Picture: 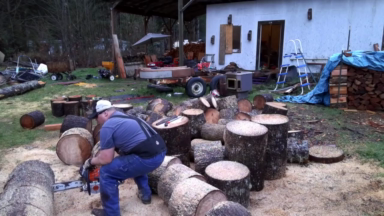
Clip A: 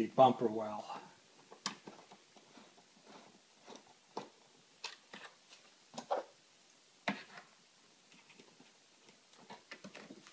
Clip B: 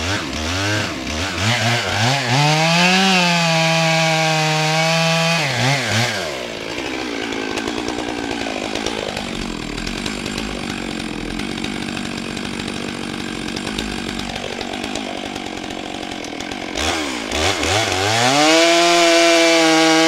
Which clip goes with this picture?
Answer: B